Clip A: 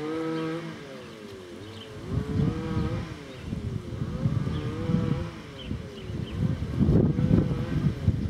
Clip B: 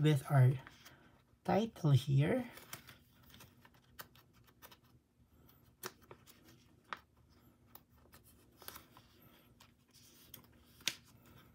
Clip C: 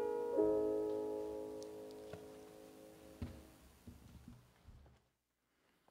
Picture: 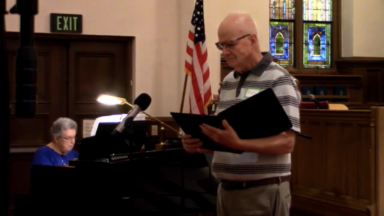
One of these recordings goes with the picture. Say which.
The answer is C